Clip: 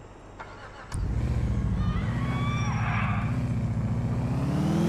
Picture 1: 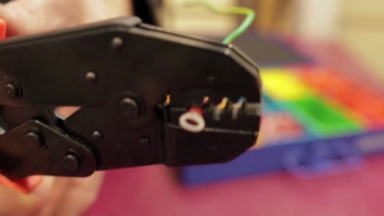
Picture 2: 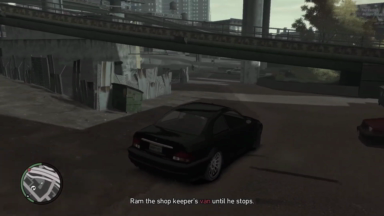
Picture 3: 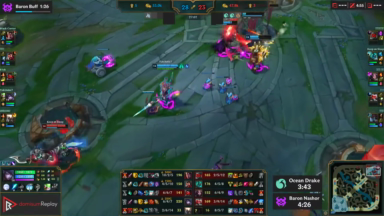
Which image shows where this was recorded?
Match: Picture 2